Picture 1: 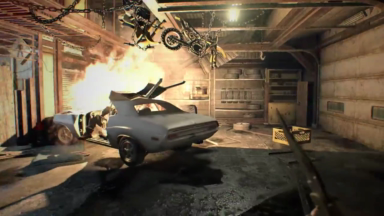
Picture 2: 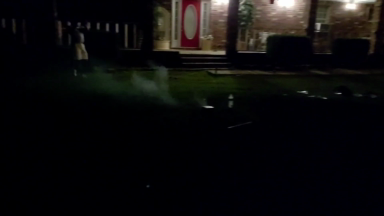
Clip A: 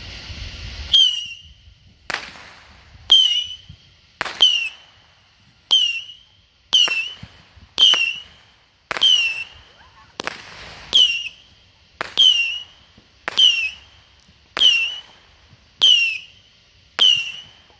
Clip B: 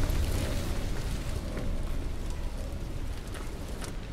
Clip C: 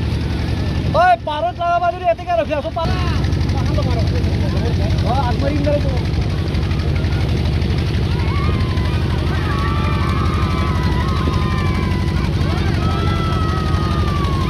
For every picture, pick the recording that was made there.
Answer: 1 B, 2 A